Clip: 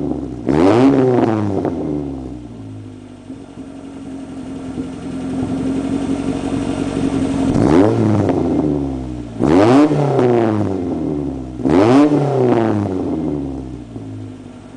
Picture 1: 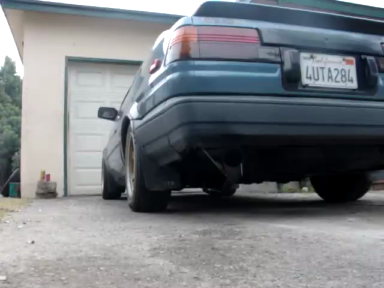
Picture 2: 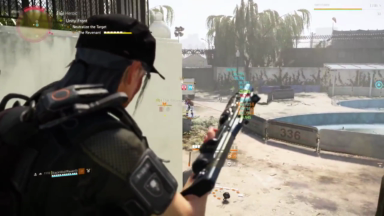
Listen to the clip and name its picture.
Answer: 1